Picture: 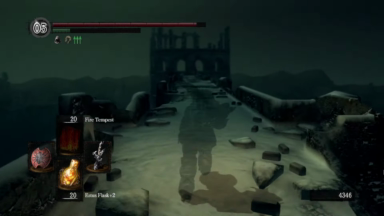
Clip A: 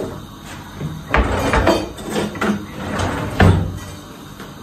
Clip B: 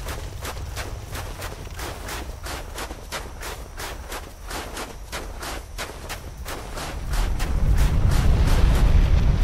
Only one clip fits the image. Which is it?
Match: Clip B